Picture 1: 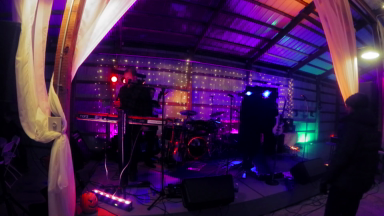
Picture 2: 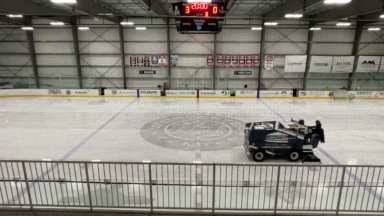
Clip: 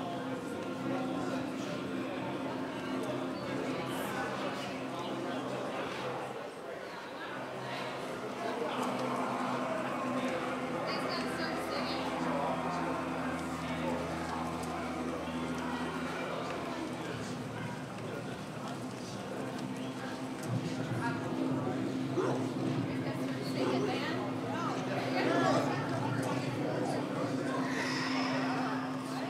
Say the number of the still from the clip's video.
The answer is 1